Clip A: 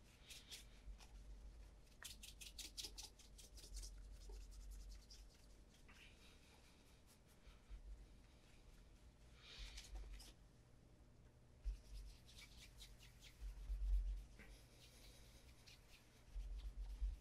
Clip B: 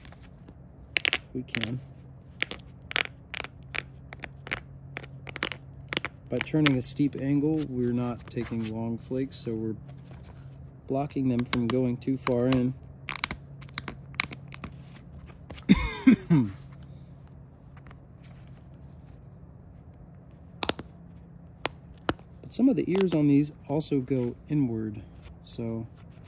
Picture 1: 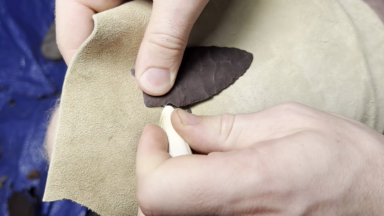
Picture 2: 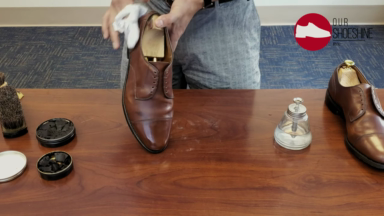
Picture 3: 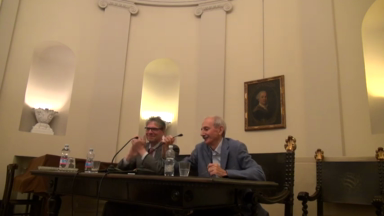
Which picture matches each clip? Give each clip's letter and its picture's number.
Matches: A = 2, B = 1